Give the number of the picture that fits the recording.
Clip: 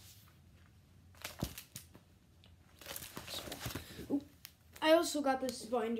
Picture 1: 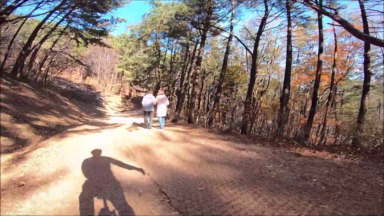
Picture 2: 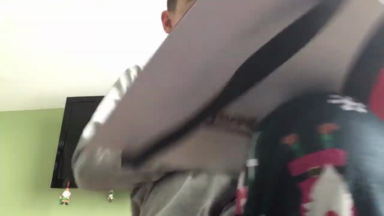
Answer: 2